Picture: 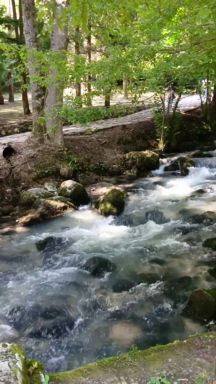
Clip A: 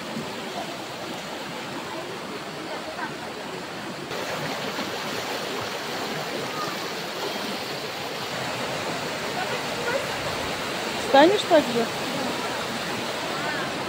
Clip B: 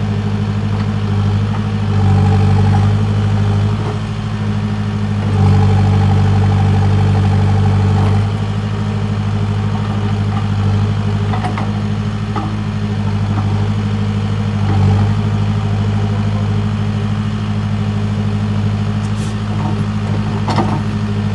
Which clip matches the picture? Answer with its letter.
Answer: A